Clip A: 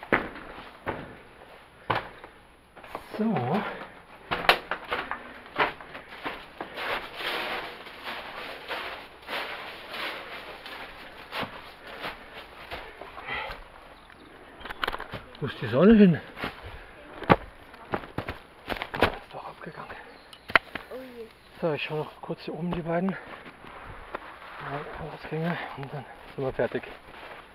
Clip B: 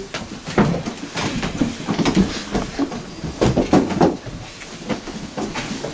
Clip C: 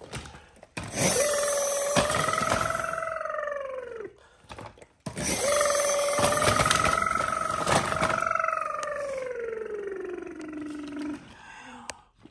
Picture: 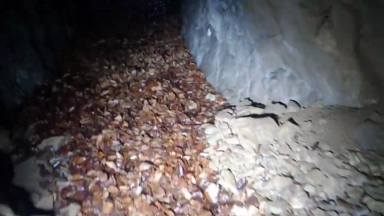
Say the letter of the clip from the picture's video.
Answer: A